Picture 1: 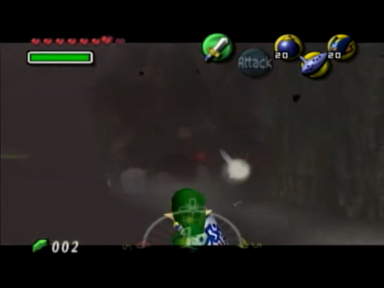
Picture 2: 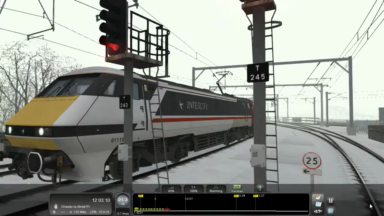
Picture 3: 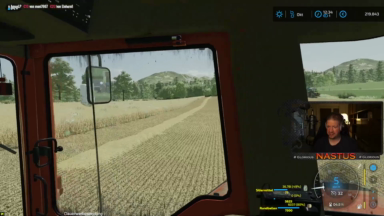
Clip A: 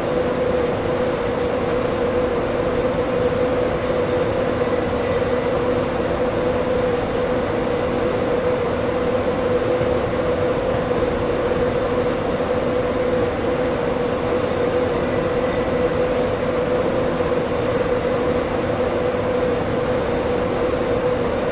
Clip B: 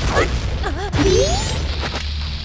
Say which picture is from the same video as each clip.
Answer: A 2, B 1